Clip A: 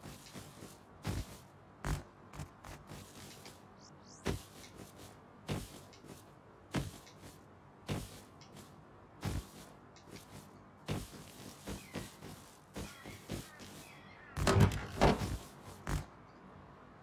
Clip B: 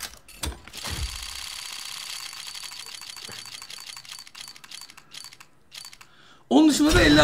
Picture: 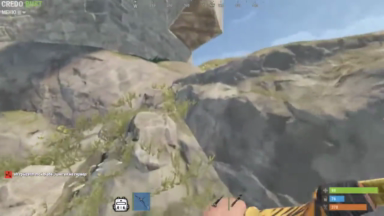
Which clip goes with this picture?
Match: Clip A